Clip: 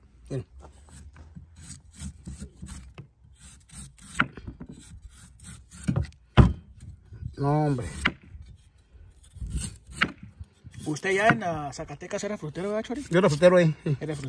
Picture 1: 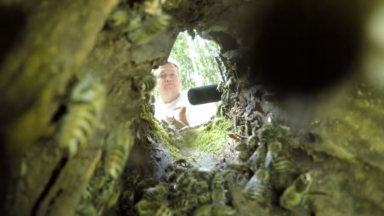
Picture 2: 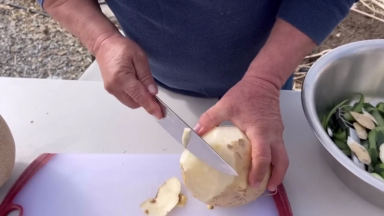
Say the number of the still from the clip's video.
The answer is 2